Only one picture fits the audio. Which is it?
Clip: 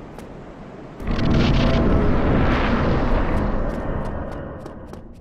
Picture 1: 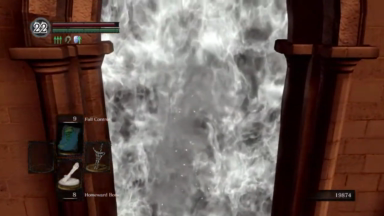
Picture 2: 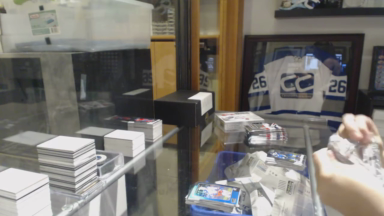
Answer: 1